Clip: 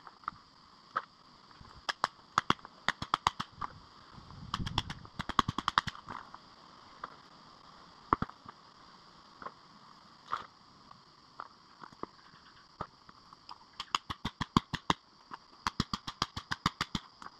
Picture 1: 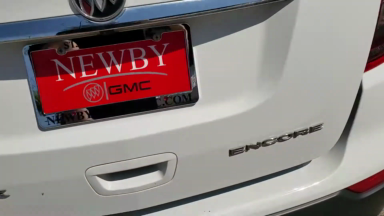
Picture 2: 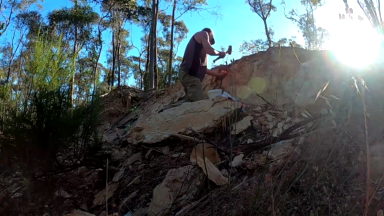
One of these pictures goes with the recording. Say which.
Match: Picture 2